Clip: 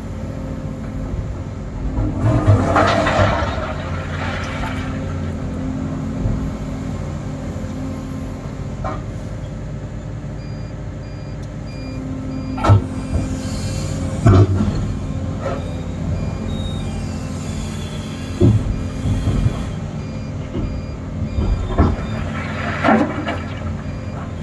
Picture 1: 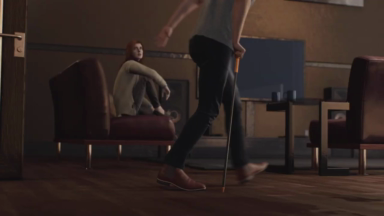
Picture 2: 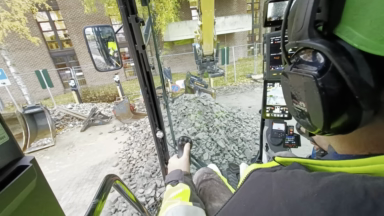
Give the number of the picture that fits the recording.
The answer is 2